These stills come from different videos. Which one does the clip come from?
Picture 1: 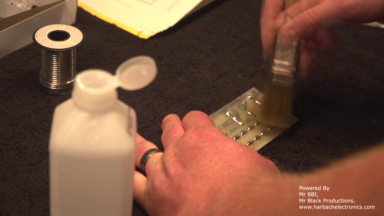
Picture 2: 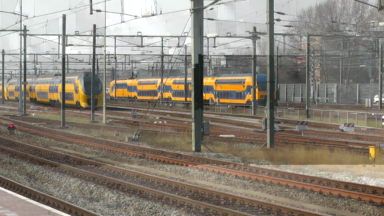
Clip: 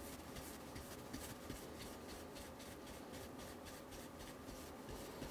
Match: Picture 1